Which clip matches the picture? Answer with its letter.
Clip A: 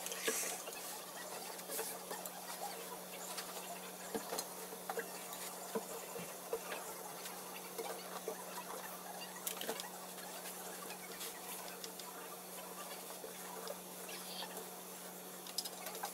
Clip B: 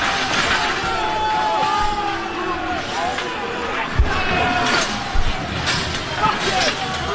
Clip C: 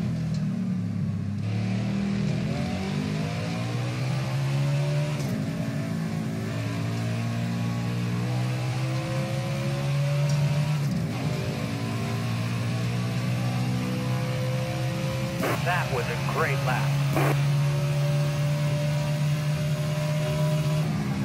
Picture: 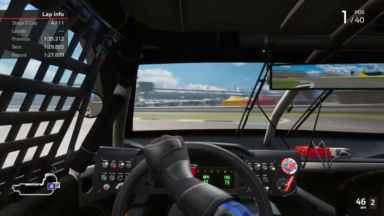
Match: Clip C